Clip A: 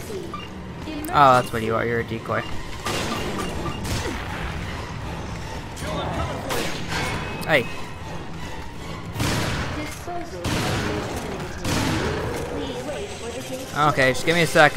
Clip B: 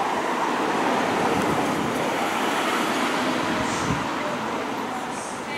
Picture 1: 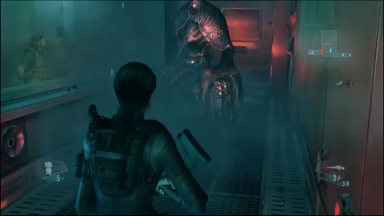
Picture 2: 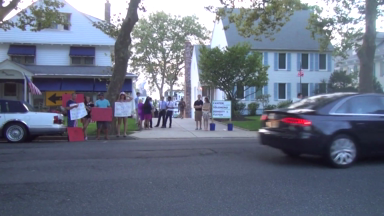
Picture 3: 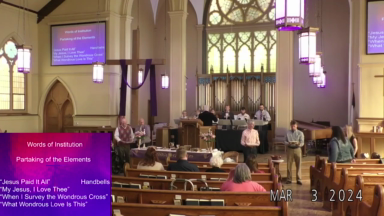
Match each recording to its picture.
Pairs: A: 1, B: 2